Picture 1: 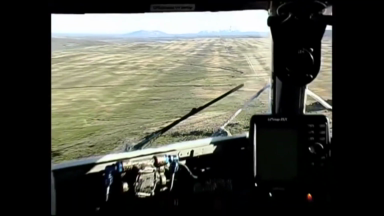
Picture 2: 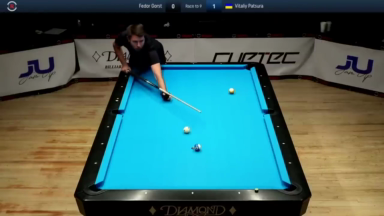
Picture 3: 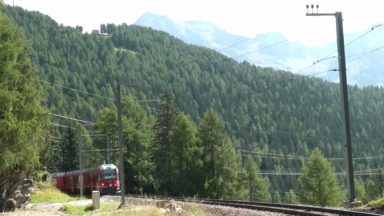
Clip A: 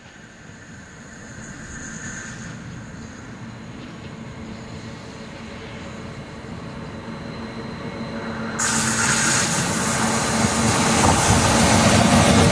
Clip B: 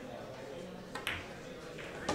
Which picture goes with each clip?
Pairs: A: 3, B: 2